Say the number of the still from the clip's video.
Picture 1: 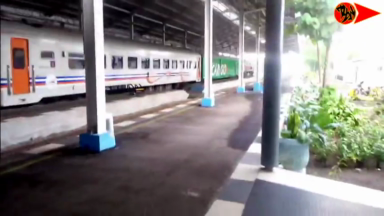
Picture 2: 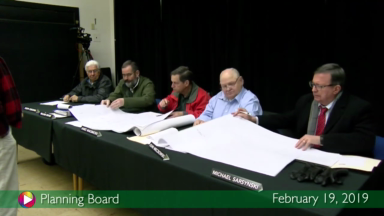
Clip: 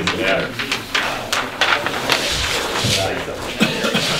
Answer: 2